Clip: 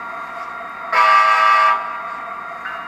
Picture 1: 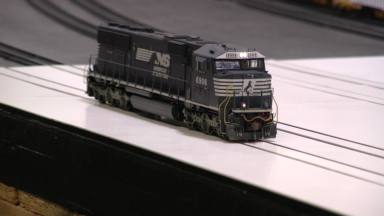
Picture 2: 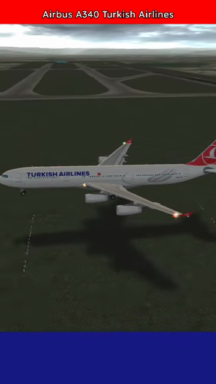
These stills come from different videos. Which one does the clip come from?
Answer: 1